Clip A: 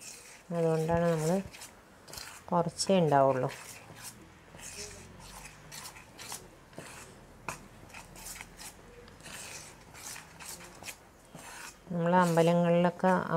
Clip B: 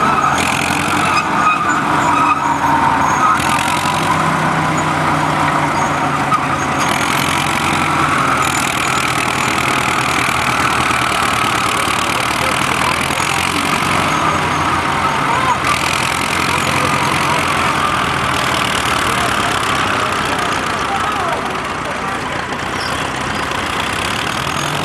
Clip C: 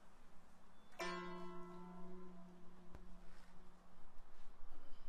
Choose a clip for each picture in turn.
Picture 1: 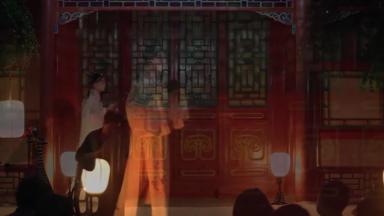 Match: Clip C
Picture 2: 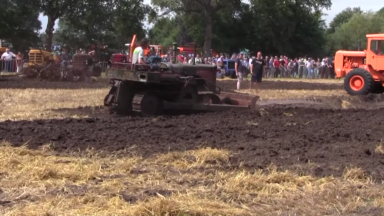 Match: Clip B